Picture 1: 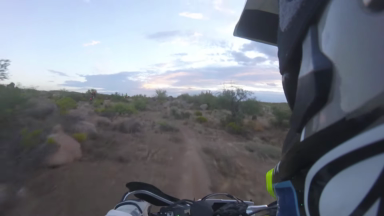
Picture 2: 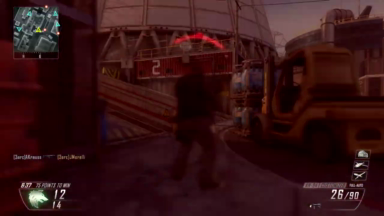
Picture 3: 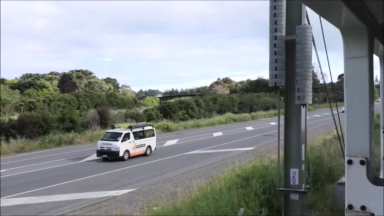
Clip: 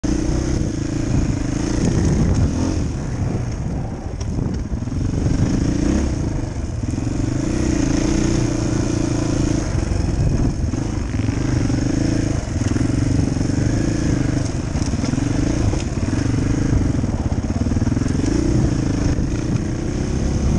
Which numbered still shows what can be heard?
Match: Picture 1